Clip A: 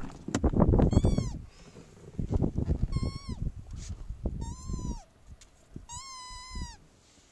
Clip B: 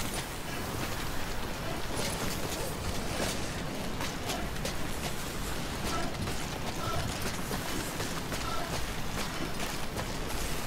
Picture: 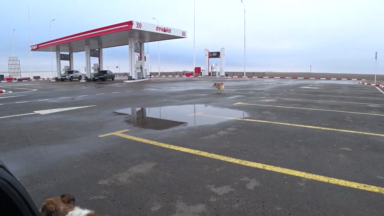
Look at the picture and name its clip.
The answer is A